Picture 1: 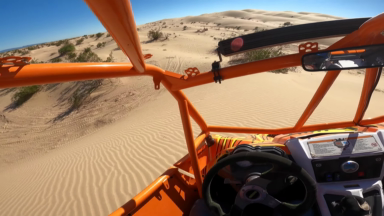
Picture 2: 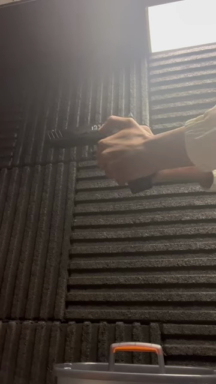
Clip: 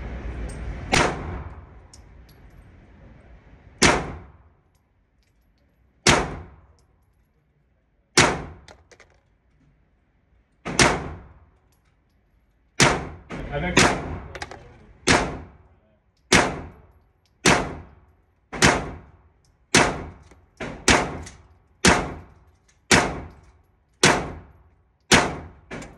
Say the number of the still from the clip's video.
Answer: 2